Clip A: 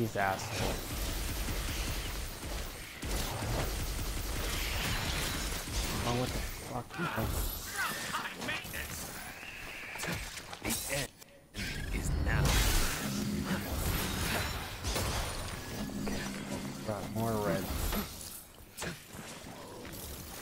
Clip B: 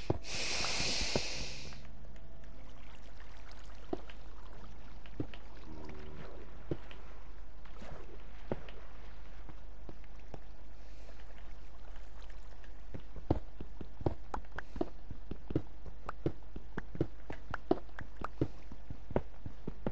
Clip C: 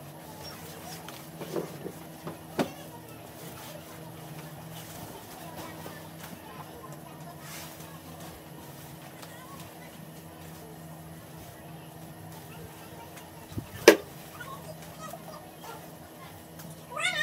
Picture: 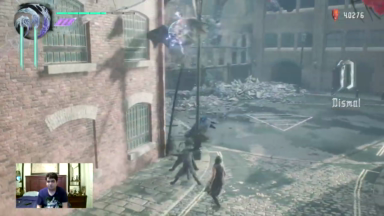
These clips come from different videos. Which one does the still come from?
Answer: A